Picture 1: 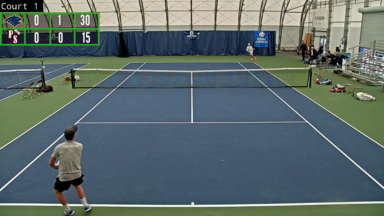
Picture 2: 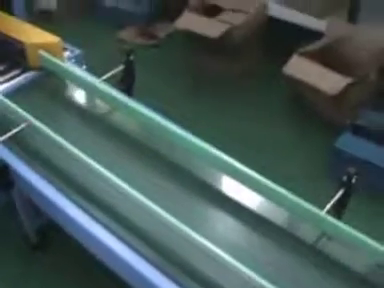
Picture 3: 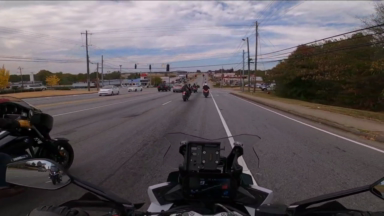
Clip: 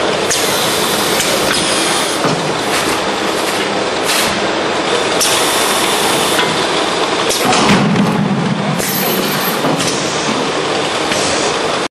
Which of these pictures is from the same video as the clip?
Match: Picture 2